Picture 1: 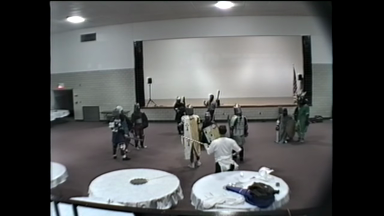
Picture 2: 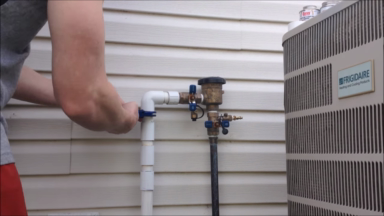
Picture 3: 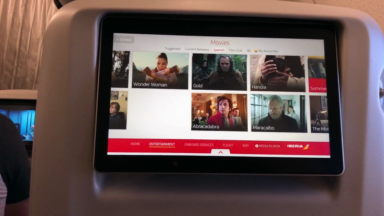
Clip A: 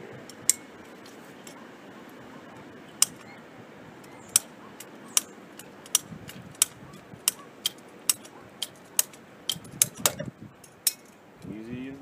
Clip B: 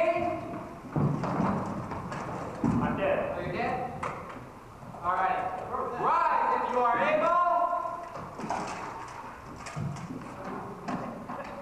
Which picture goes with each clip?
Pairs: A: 2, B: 1